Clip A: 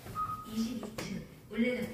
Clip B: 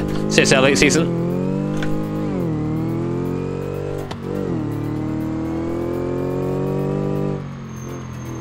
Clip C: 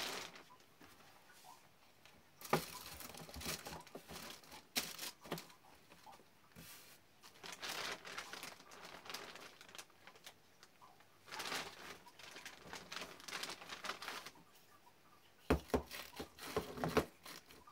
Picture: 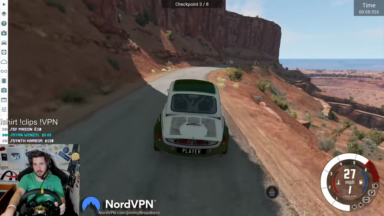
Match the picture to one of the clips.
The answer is B